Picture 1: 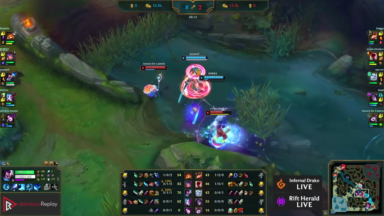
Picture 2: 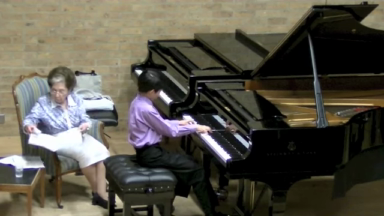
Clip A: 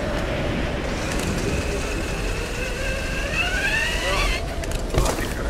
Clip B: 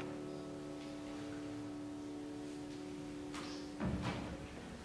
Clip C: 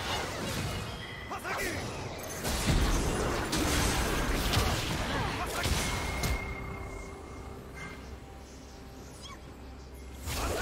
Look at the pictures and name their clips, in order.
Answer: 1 C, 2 B